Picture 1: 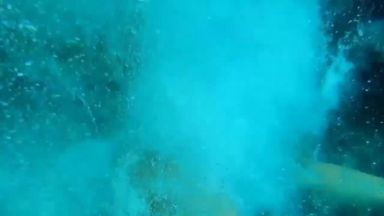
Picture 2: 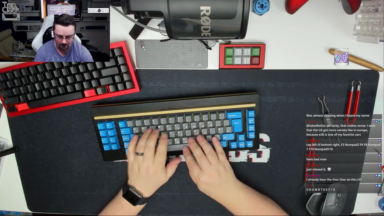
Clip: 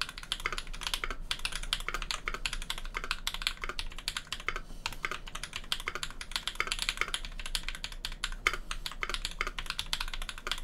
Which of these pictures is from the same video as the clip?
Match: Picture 2